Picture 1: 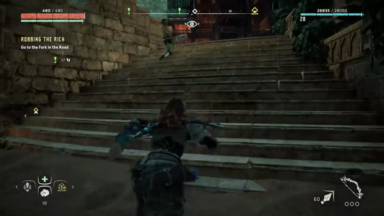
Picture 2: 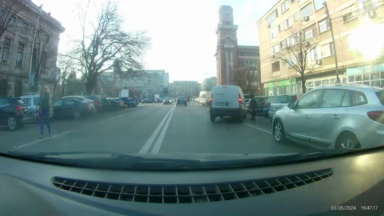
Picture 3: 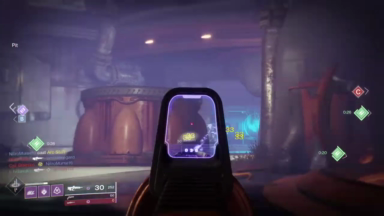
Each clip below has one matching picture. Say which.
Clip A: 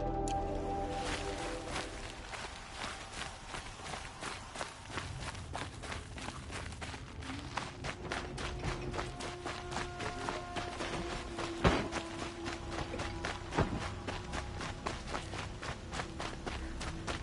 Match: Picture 1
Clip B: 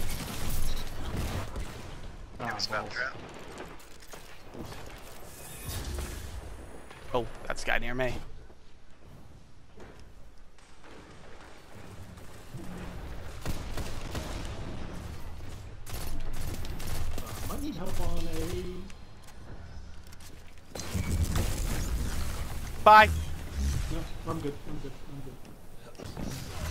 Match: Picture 3